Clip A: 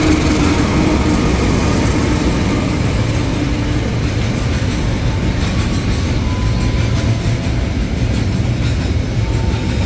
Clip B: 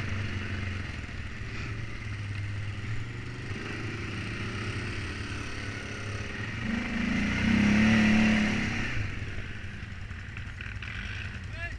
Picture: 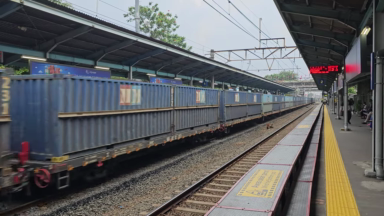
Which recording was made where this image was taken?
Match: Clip A